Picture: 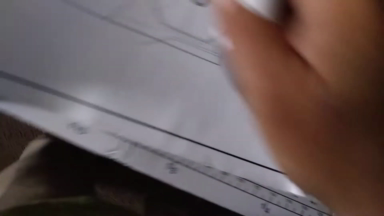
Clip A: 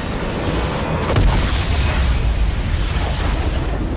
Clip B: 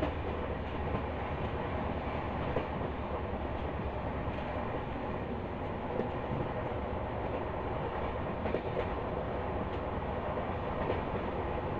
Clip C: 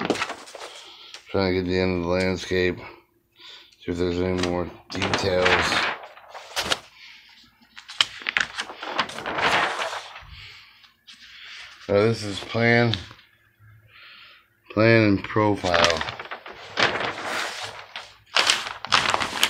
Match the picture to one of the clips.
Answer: C